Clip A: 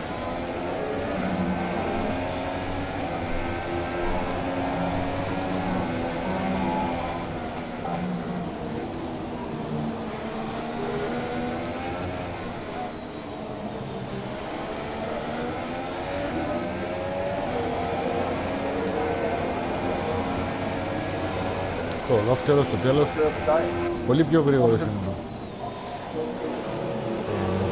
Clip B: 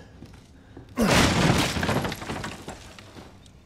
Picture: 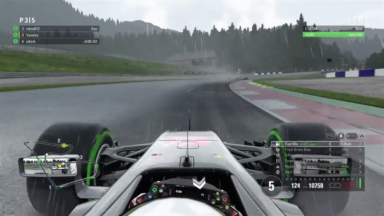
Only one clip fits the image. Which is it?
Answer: A